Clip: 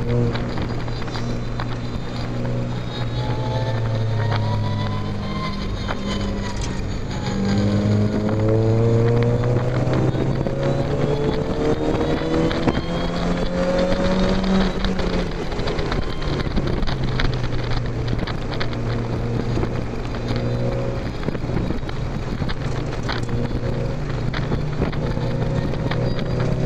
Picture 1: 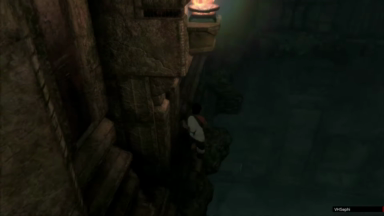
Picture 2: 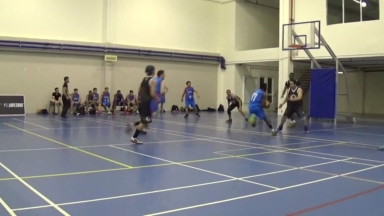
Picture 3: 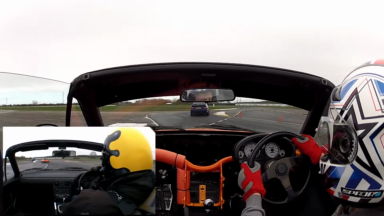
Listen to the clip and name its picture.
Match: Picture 3